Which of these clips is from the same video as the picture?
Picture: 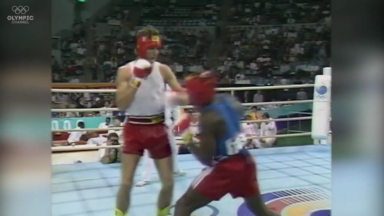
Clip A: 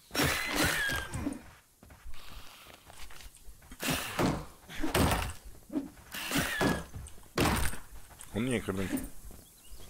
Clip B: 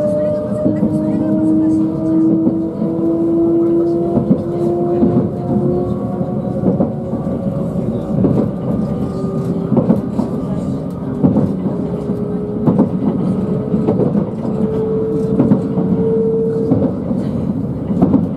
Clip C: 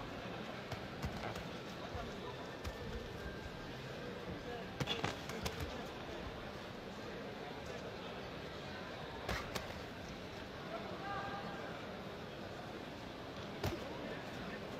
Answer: C